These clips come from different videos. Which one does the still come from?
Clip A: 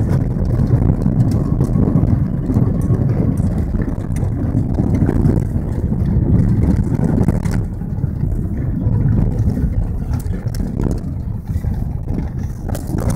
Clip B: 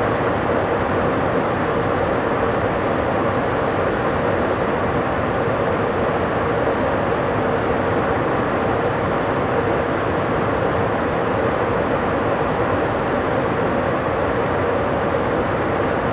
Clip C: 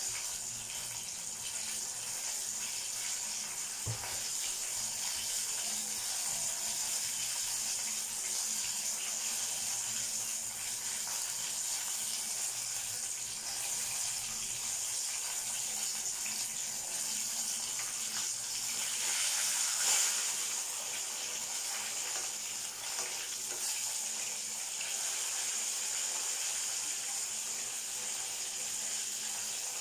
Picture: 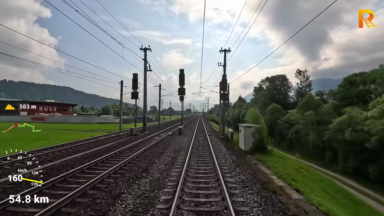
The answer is B